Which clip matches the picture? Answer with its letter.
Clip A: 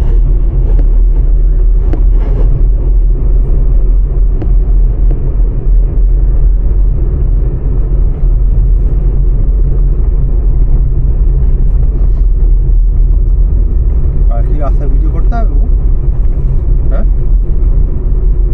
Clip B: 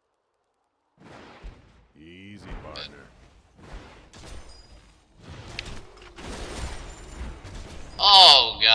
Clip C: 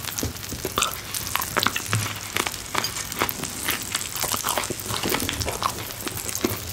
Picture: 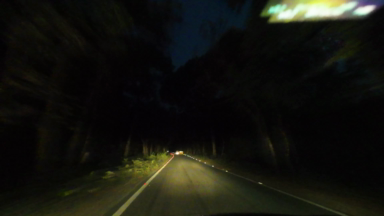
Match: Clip A